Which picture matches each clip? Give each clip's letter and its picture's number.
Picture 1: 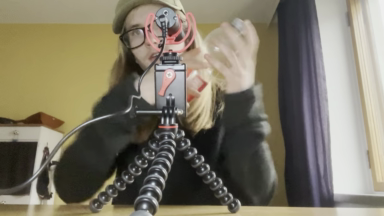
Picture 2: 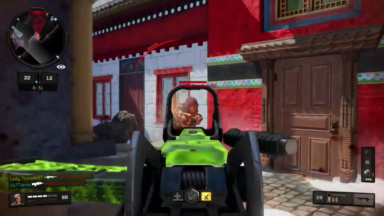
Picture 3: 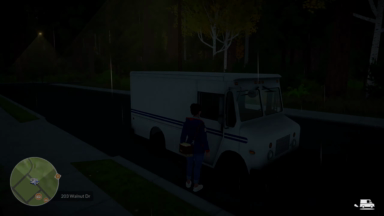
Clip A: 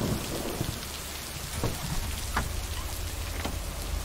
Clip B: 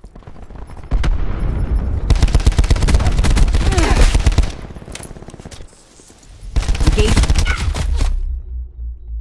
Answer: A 3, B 2